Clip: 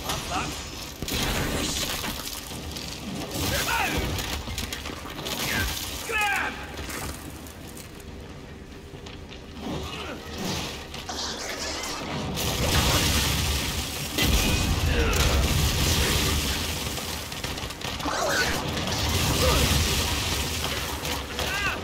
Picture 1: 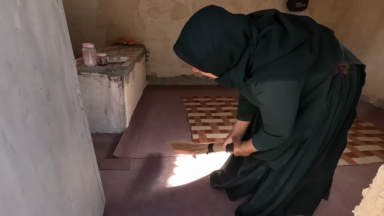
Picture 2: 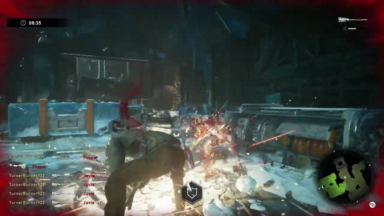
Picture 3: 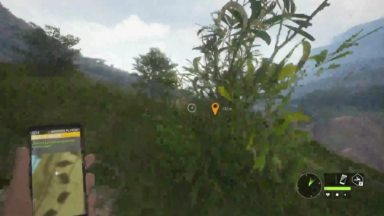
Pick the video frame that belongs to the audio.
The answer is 2